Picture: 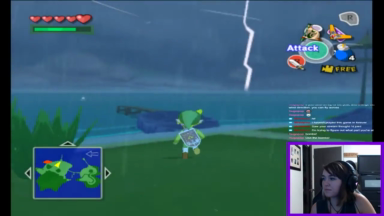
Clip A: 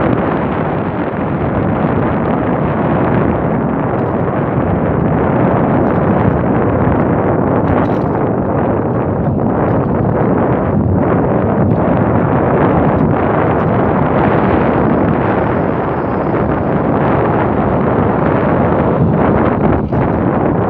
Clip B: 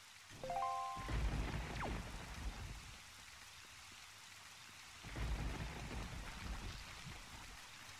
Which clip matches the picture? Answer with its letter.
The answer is B